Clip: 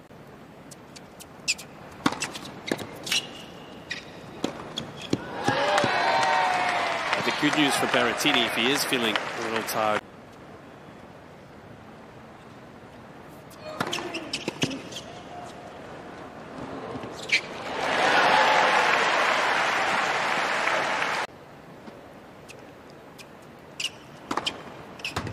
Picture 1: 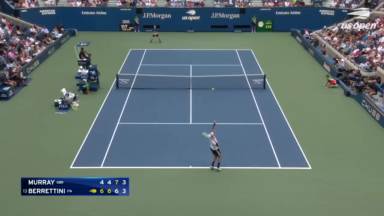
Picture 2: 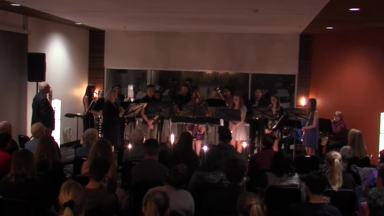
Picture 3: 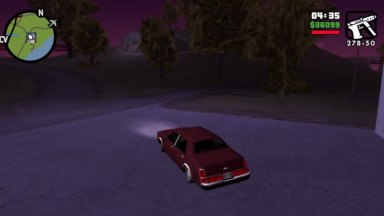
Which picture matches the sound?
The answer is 1